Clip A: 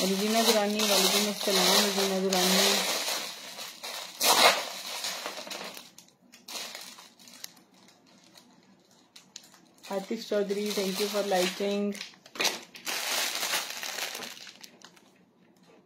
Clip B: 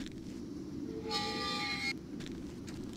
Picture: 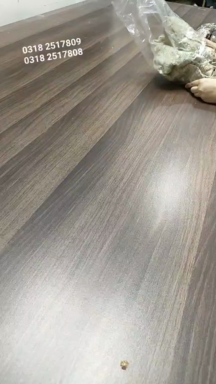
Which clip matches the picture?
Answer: A